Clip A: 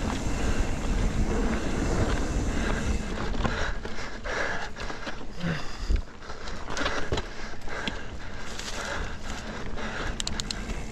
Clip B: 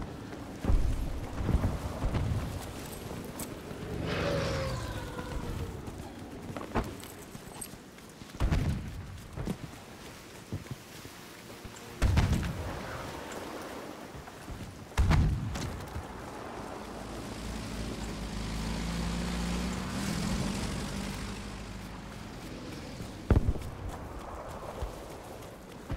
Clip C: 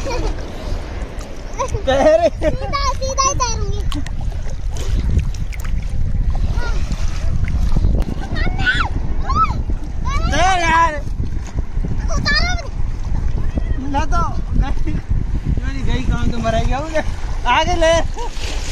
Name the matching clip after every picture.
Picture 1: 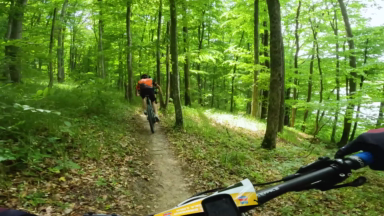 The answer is A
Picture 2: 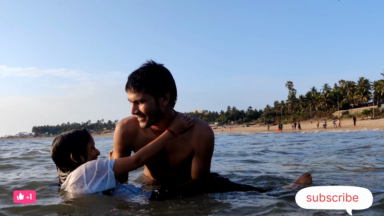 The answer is C